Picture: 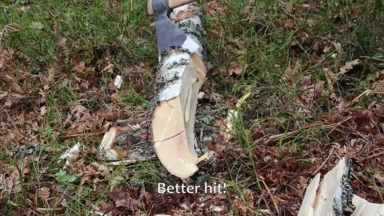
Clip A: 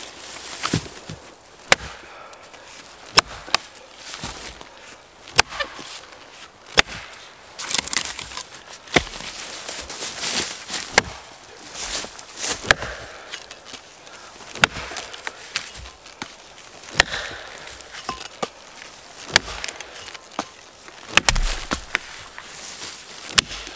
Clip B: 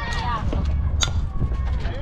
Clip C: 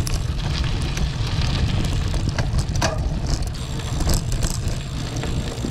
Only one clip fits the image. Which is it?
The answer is A